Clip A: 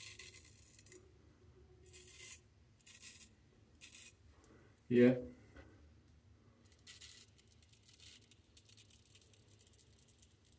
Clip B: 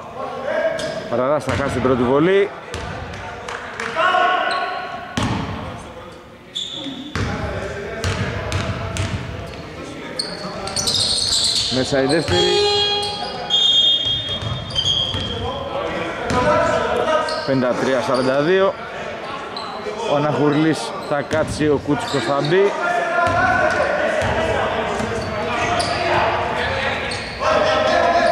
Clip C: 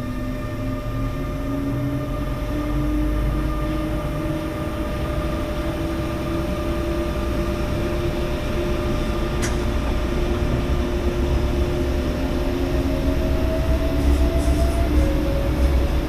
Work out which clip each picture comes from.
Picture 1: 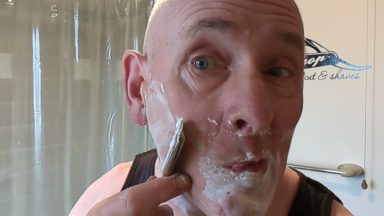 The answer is A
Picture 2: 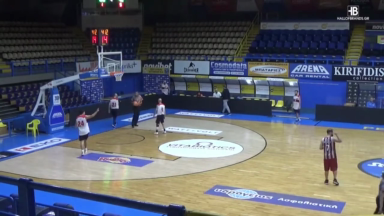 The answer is B